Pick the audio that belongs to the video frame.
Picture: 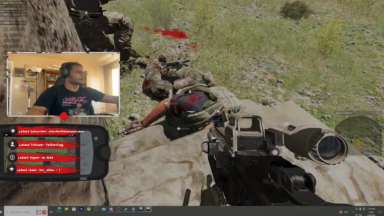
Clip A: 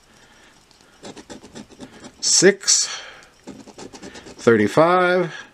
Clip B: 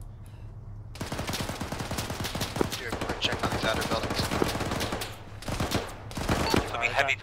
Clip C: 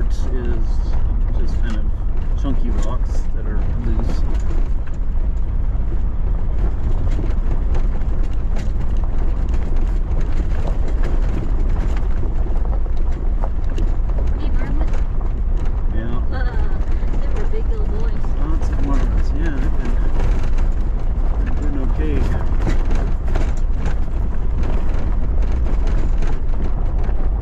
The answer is B